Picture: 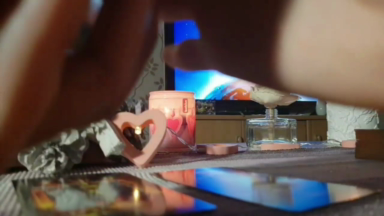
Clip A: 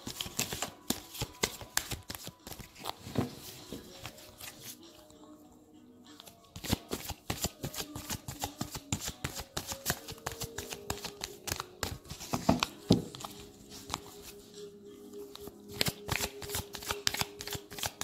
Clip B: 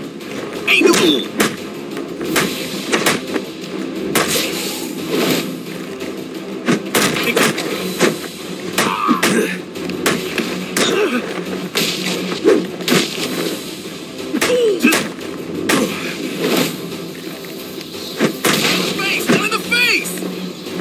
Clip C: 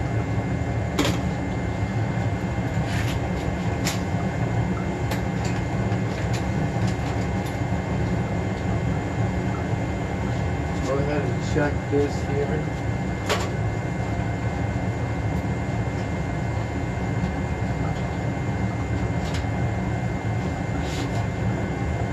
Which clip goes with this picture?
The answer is A